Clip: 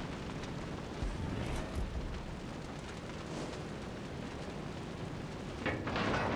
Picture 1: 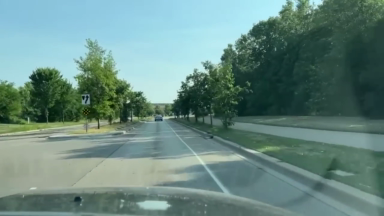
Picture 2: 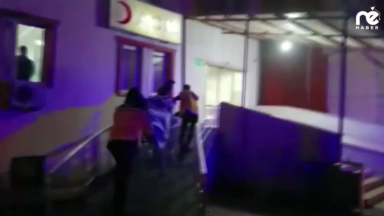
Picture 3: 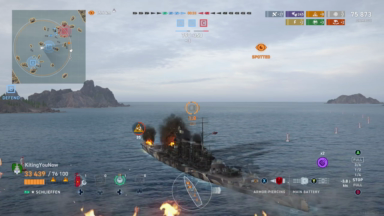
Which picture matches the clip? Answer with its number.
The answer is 3